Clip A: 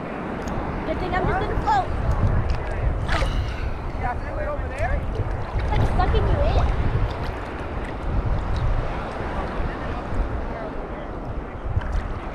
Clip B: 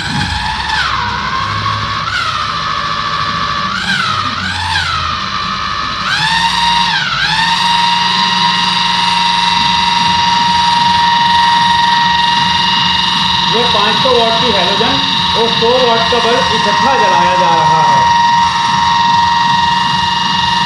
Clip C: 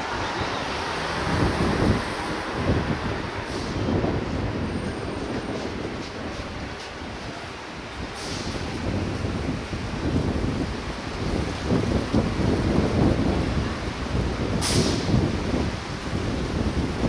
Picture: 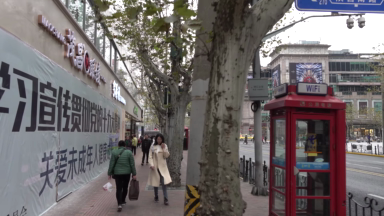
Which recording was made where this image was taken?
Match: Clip C